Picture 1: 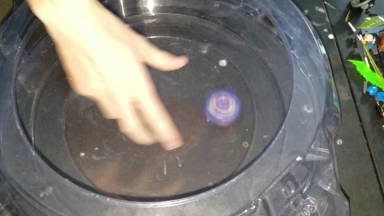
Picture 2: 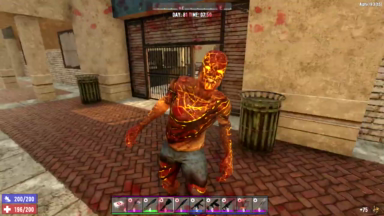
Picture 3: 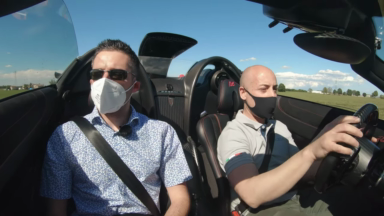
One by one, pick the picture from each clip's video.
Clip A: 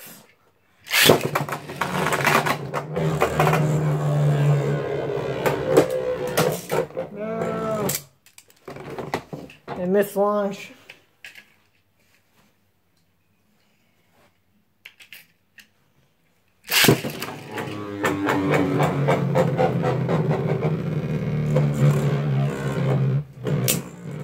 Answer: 1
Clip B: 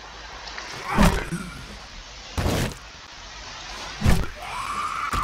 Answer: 2